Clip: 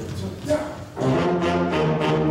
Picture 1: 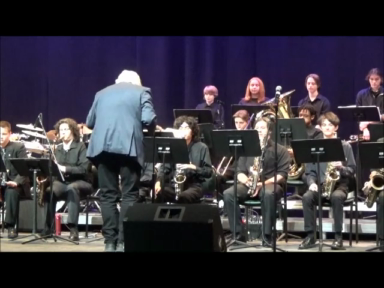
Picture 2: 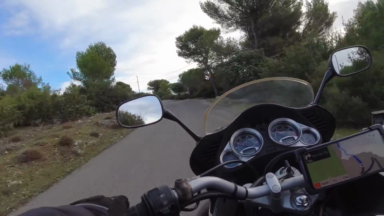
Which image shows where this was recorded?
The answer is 1